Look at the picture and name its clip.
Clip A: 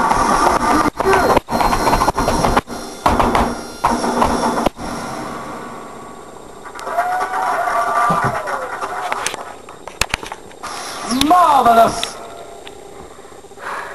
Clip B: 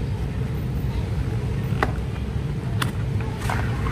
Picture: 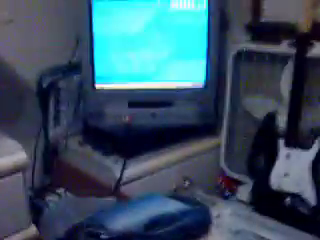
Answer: A